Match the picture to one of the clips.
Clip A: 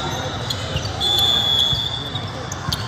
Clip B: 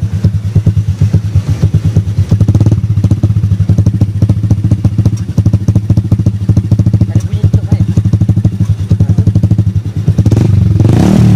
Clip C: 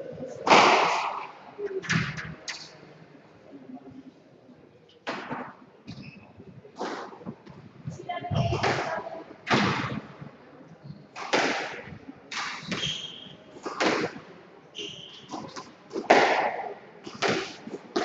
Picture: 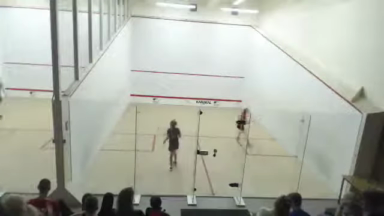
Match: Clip C